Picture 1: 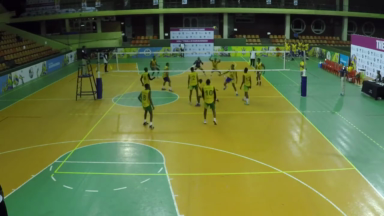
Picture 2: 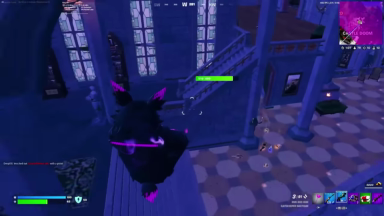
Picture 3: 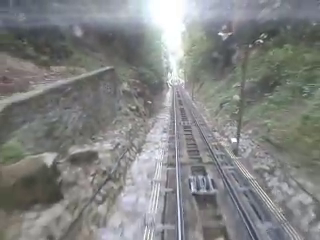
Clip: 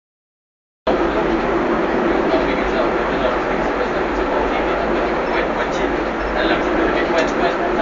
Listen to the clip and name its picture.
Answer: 3